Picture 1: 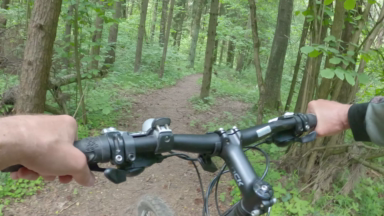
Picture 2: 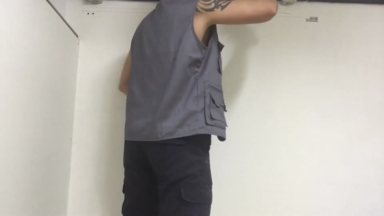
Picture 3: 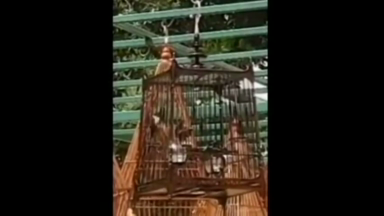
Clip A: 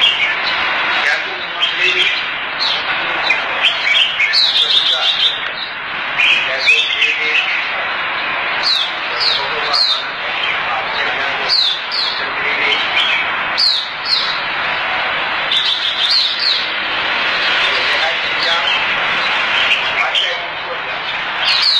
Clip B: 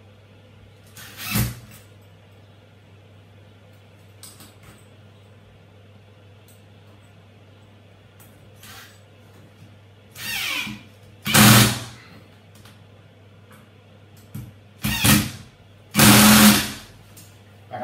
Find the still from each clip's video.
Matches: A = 3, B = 2